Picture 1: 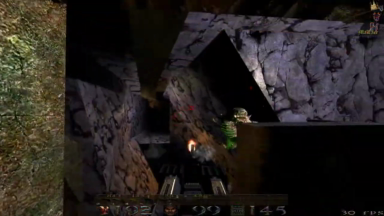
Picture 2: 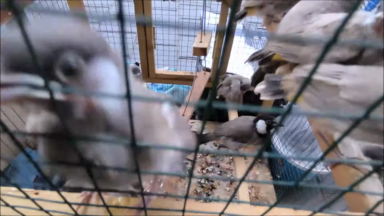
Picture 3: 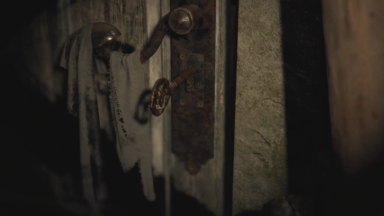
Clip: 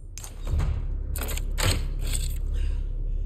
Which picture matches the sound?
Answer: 3